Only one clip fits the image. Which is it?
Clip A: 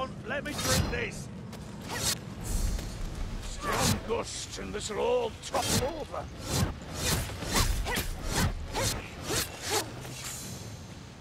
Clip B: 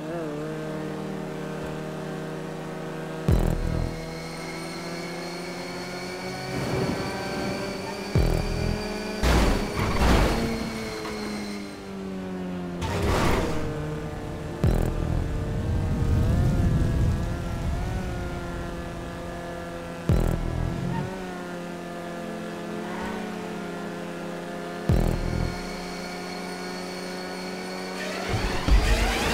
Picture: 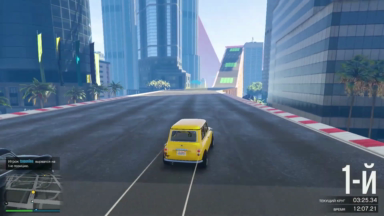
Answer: B